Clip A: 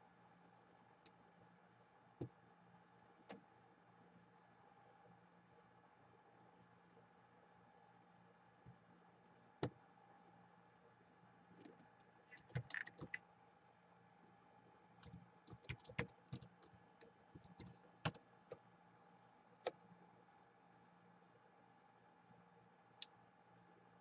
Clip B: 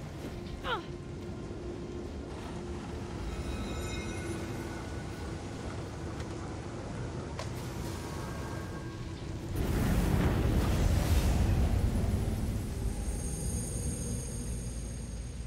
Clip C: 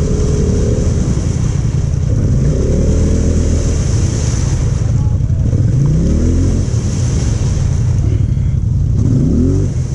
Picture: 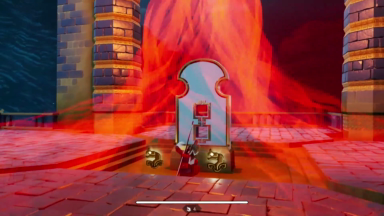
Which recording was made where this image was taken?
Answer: B